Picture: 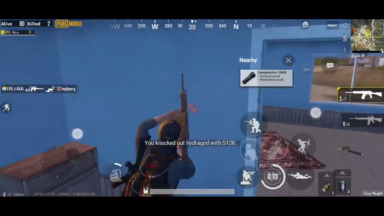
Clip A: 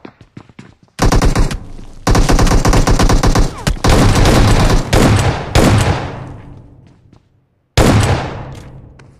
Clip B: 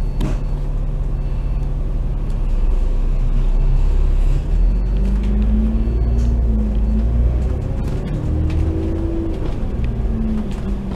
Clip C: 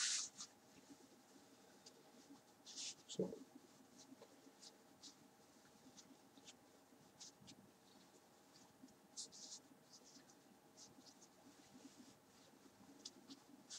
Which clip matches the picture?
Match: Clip A